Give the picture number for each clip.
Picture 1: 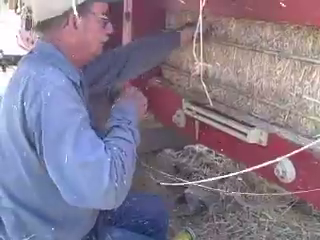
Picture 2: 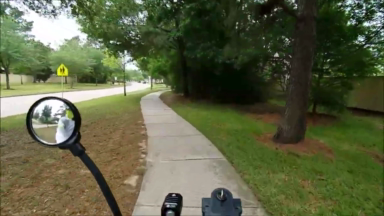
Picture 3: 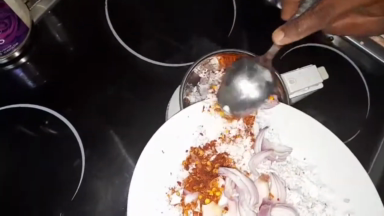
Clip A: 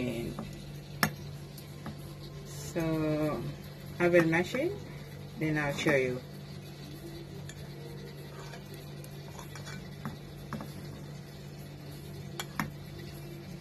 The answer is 3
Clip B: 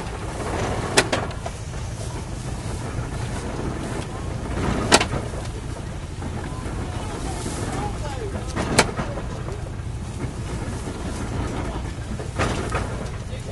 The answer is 1